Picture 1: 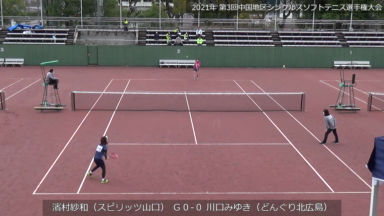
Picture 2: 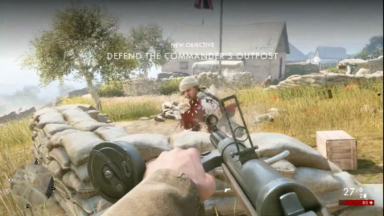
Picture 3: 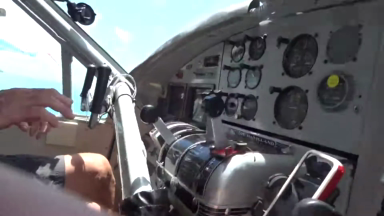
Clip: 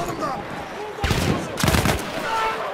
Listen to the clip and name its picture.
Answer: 2